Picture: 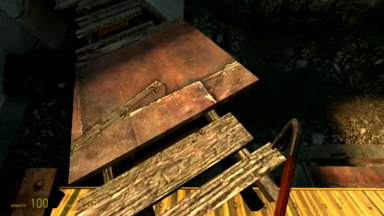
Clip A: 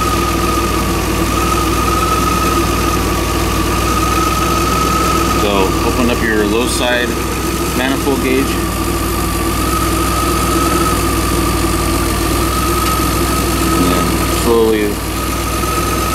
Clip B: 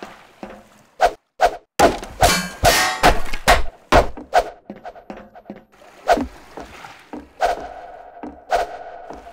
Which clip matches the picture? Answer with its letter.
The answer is B